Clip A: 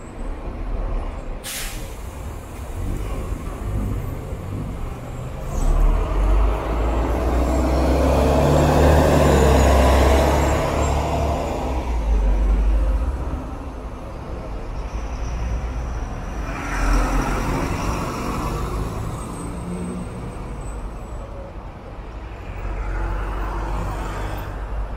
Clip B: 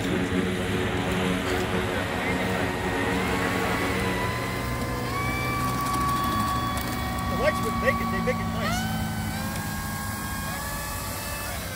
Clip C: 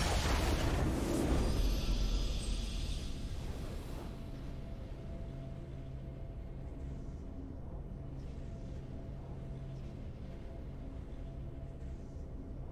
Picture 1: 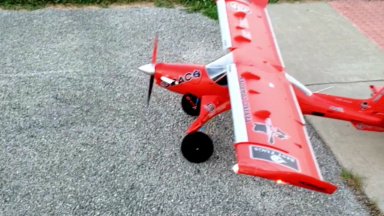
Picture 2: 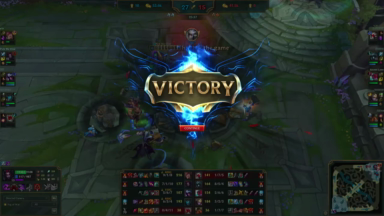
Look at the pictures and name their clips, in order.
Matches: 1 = B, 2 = C